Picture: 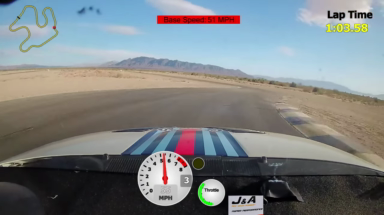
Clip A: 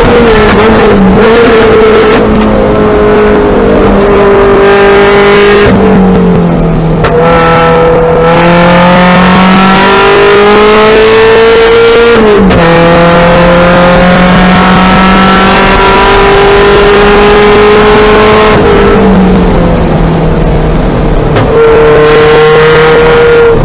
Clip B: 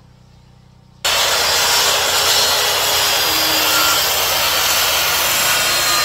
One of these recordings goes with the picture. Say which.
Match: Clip A